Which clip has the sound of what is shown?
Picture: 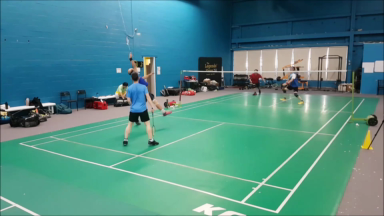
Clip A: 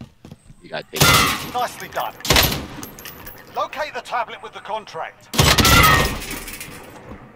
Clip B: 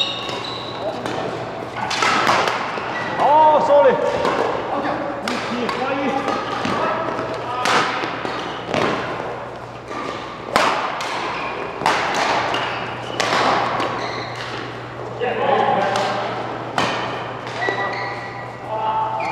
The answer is B